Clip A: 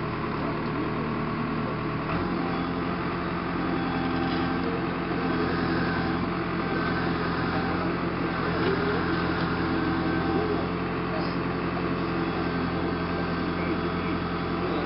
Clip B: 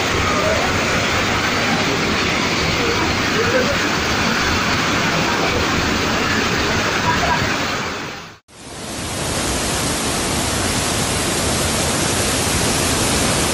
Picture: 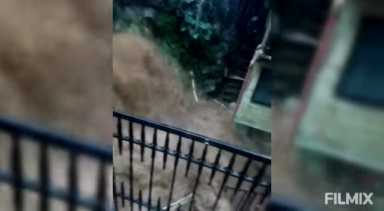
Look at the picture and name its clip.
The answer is B